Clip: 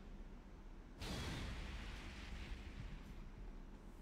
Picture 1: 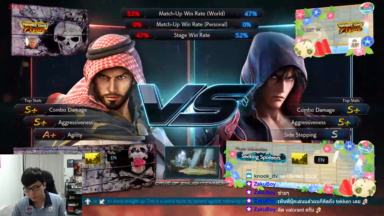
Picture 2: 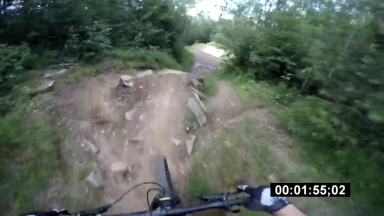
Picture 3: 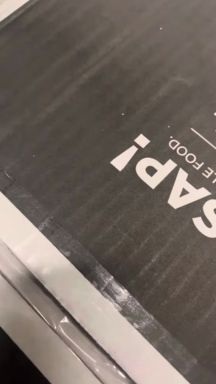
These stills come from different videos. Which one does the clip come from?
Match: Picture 1